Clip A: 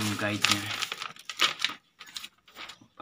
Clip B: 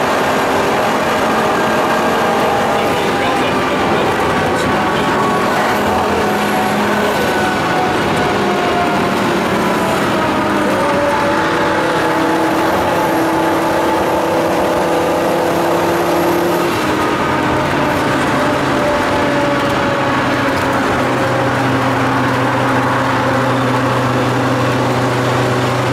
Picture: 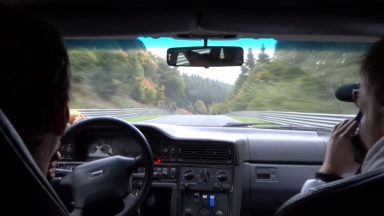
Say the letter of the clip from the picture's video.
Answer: B